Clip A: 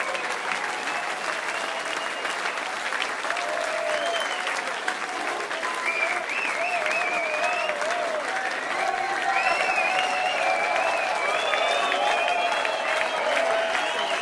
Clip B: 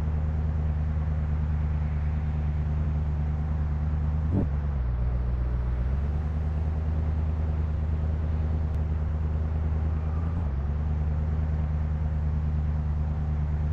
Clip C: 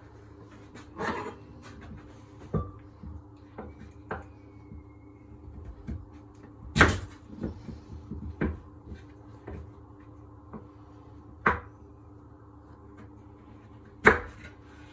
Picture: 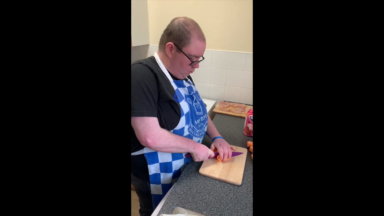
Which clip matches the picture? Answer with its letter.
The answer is C